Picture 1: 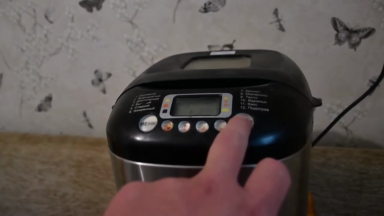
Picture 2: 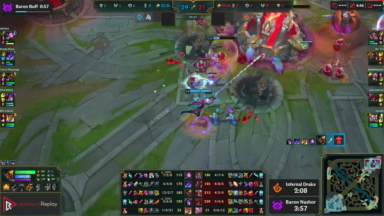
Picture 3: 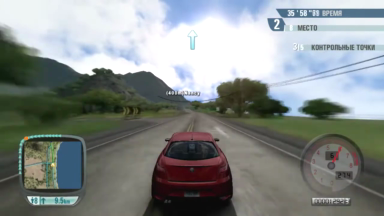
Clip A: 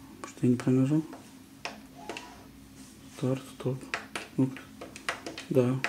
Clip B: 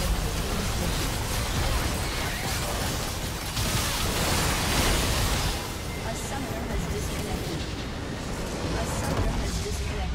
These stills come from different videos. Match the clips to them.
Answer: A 1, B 2